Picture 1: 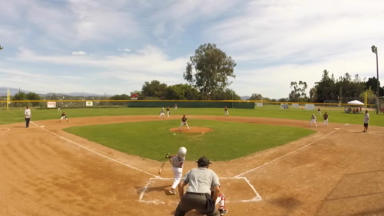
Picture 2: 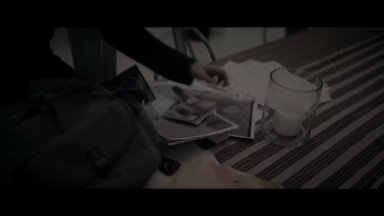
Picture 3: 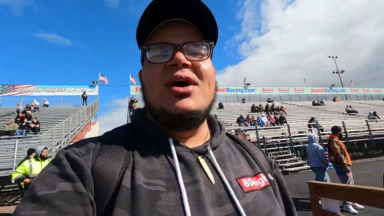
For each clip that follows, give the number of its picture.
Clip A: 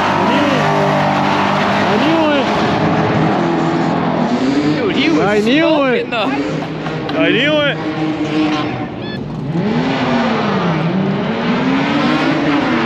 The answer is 3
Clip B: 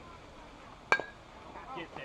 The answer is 1